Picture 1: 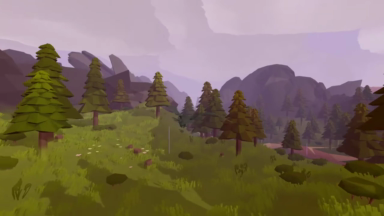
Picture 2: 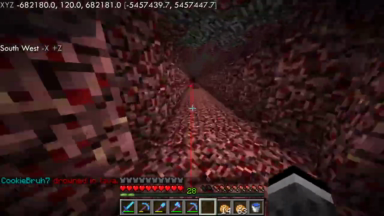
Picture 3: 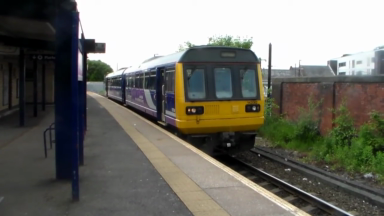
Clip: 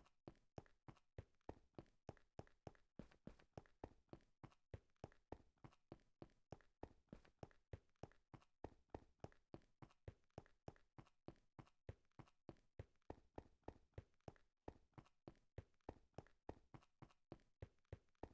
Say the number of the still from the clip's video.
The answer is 2